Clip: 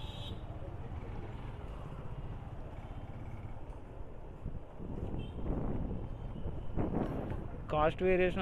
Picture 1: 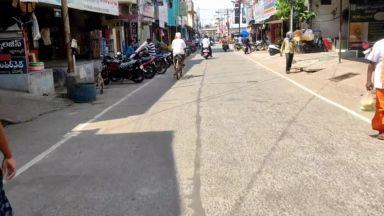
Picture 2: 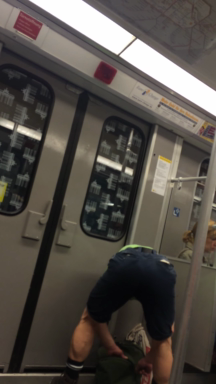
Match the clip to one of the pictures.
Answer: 1